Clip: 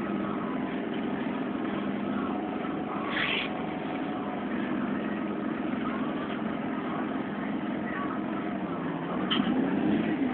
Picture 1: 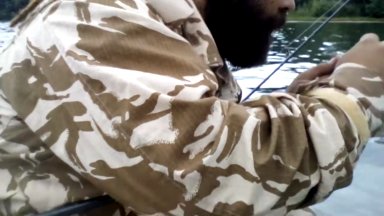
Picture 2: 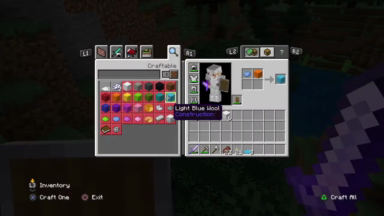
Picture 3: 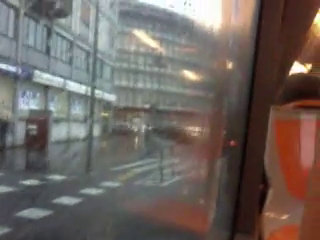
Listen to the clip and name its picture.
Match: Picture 3